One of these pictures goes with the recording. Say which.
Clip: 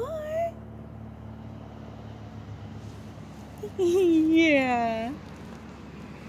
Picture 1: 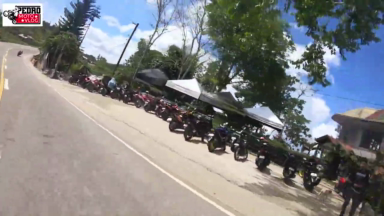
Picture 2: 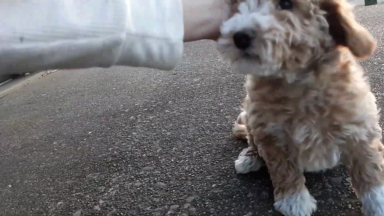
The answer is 2